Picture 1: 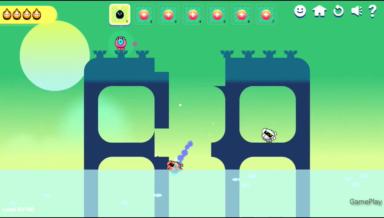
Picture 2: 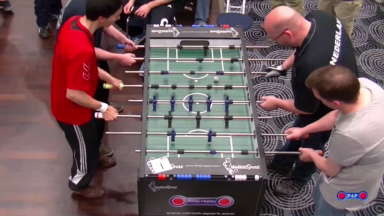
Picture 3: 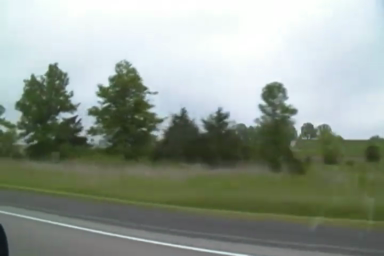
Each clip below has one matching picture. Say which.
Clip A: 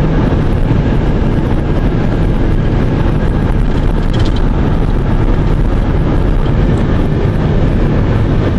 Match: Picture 3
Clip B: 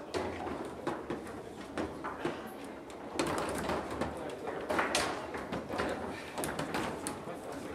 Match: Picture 2